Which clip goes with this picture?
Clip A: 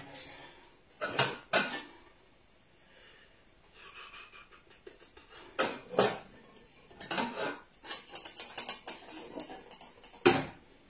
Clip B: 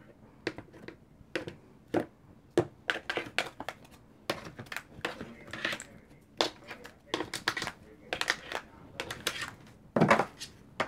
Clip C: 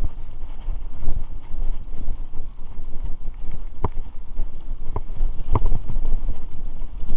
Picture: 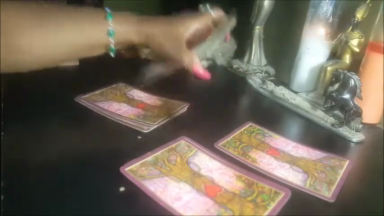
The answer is B